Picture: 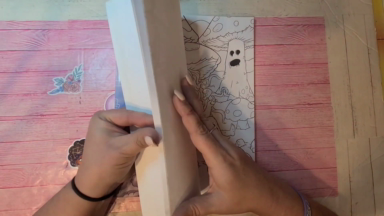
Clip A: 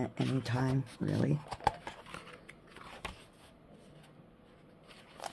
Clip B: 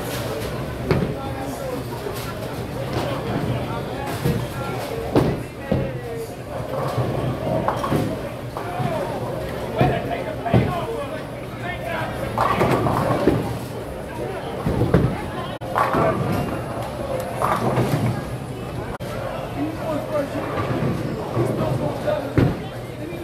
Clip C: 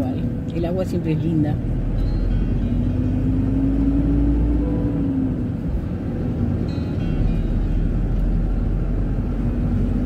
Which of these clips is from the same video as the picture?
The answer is A